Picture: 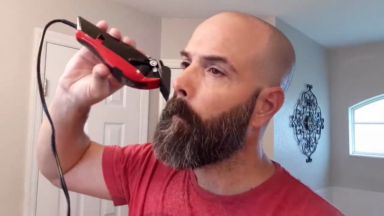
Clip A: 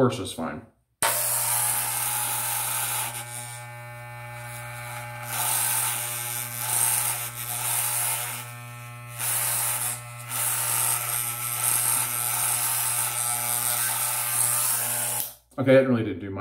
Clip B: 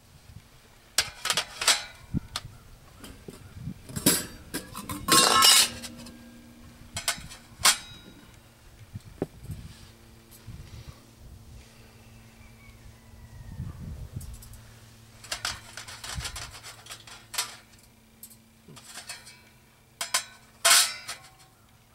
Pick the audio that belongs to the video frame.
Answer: A